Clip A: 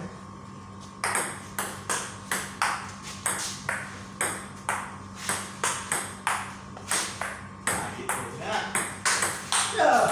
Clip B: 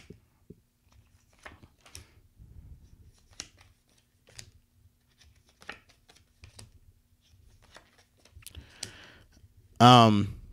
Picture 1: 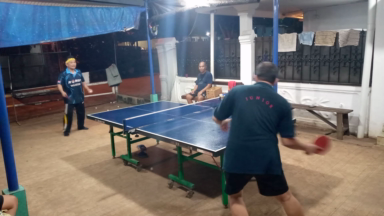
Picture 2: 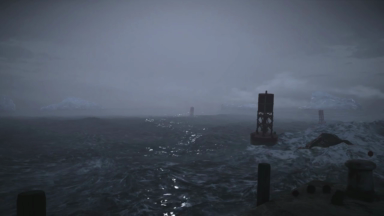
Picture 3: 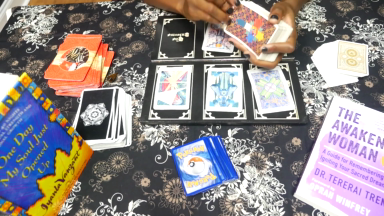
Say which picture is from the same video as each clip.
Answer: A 1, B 3